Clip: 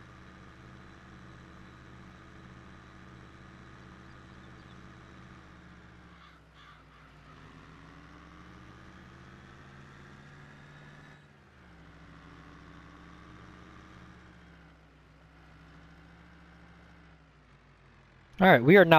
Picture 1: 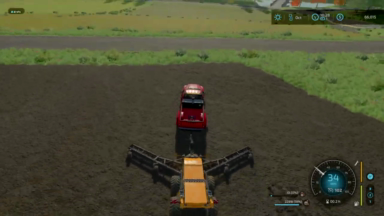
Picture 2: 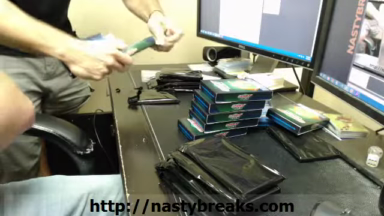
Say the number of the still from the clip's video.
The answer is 1